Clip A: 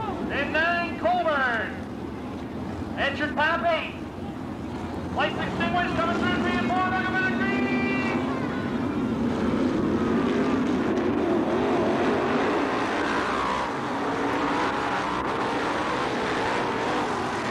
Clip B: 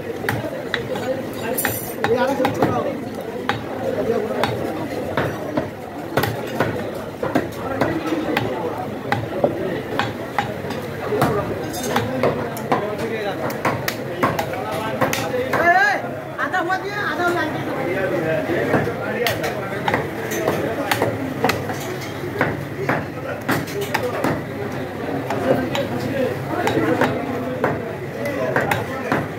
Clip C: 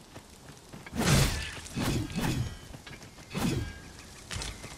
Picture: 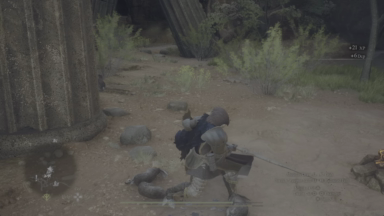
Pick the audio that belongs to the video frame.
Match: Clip C